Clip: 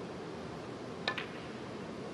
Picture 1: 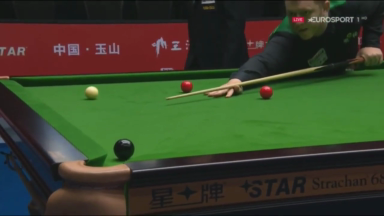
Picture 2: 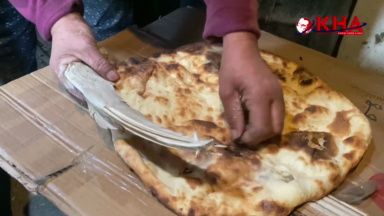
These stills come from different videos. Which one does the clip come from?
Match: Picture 1